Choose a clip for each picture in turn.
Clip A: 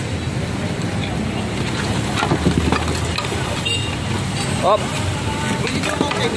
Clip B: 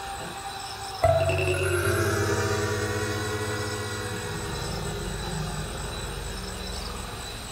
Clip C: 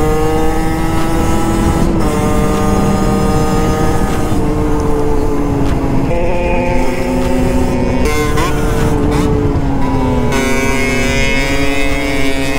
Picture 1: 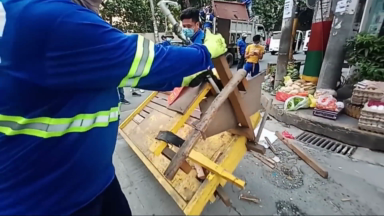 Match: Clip A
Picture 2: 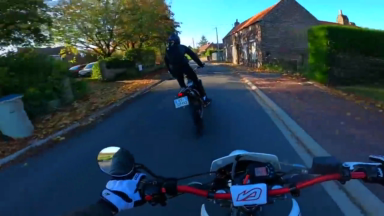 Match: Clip C